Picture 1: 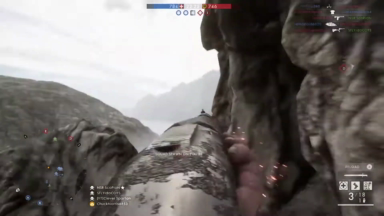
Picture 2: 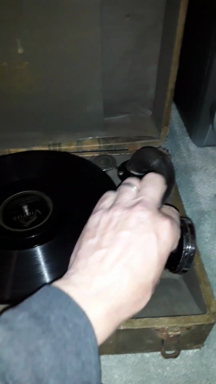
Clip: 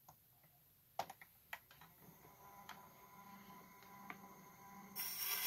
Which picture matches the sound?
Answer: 2